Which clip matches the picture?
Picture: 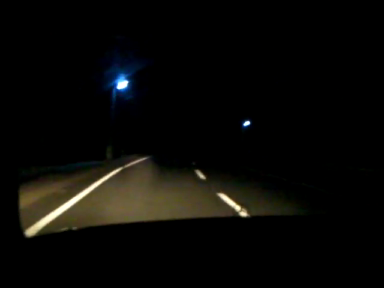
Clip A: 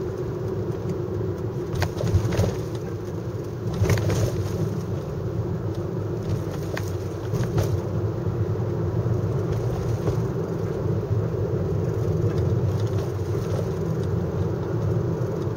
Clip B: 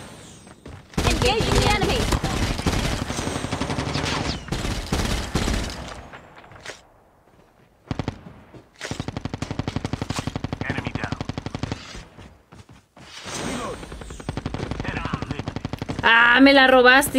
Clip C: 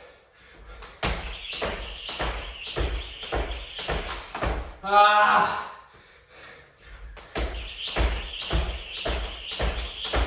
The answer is A